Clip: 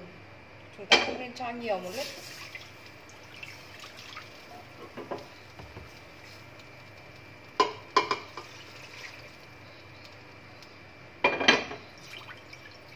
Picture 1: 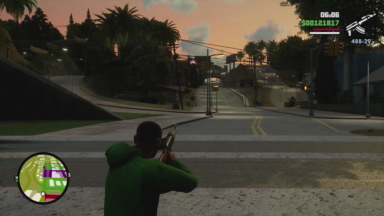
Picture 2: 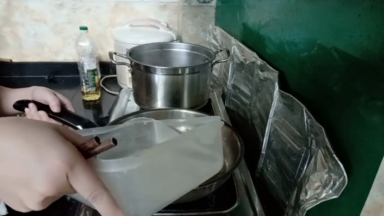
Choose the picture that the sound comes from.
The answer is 2